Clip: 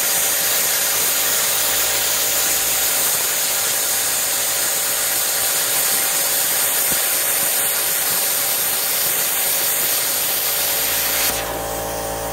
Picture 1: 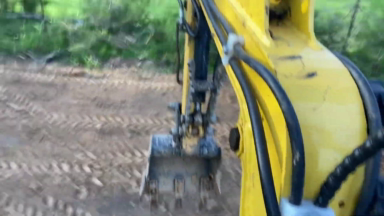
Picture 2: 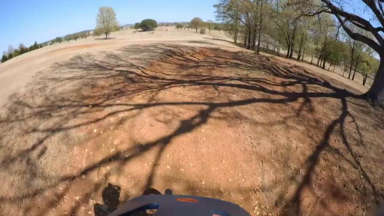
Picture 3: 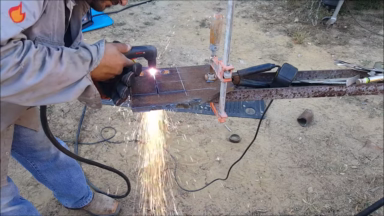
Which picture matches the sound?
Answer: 3